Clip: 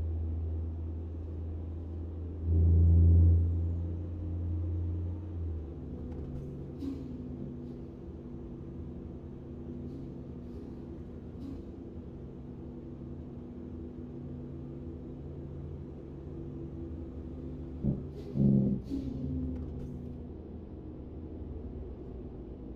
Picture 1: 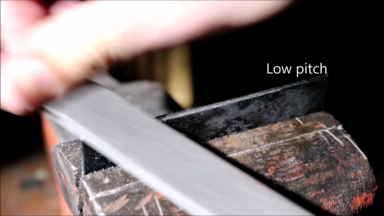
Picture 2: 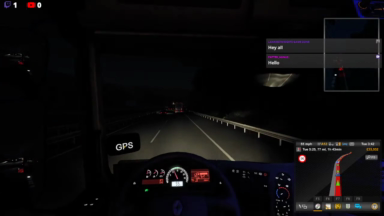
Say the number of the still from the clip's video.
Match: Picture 2